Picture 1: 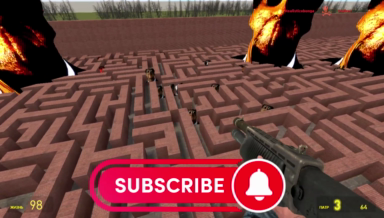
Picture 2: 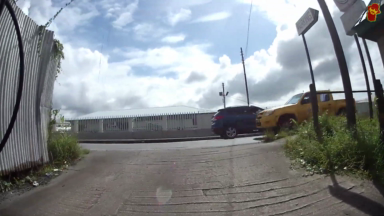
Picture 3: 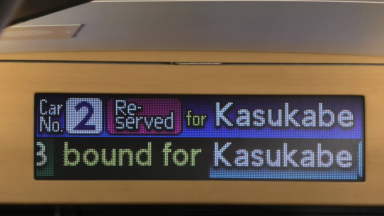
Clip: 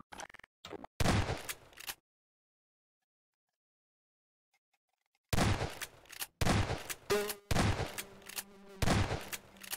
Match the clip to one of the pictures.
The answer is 1